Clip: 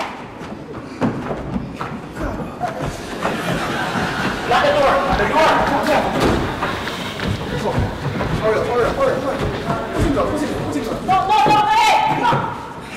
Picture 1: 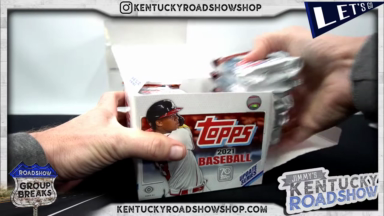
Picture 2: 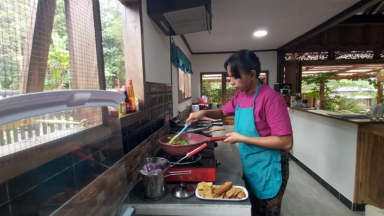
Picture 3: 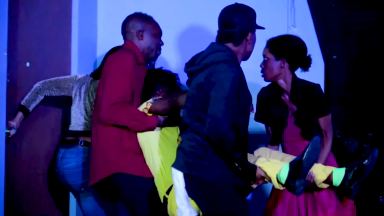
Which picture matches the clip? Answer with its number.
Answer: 3